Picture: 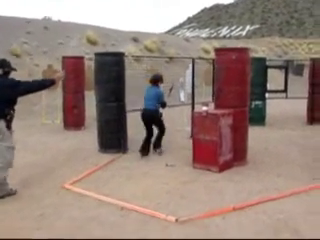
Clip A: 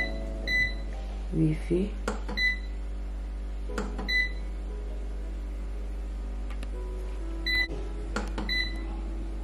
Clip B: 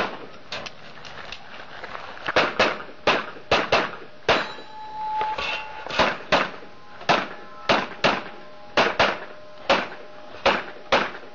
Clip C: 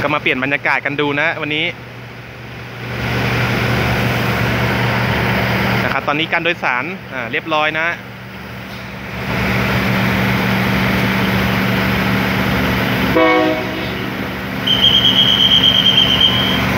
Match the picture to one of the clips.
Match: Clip B